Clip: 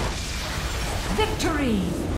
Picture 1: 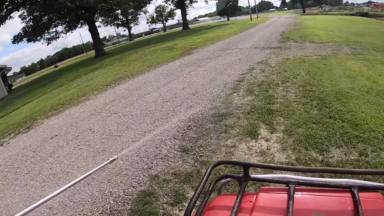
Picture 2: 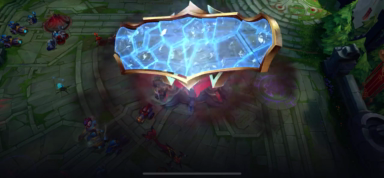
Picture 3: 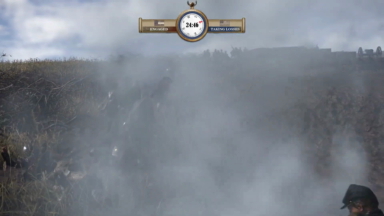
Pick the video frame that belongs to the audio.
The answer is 2